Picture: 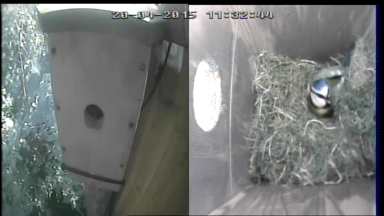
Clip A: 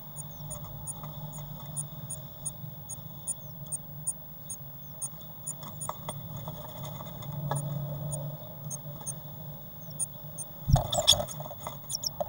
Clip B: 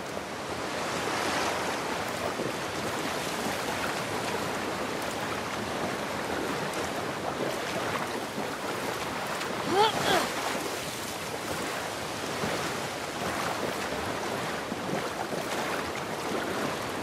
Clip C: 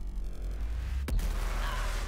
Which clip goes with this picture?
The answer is A